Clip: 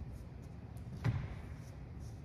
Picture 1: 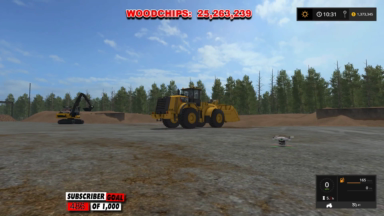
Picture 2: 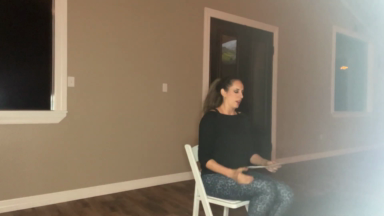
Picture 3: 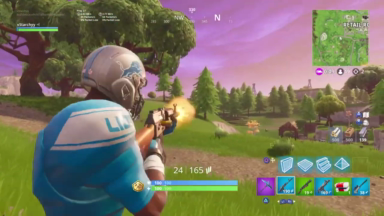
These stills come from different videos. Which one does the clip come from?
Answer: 2